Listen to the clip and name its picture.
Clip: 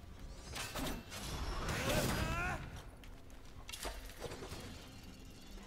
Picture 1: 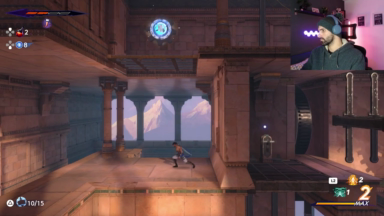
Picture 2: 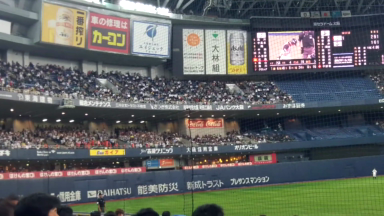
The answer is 1